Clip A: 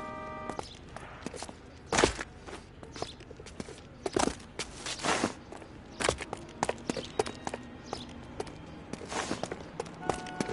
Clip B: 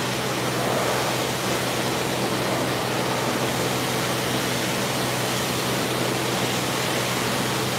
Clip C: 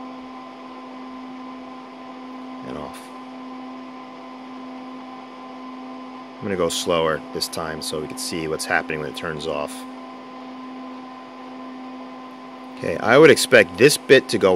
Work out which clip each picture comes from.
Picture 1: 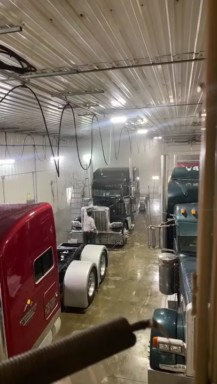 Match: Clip B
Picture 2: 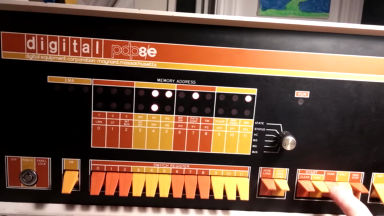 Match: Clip C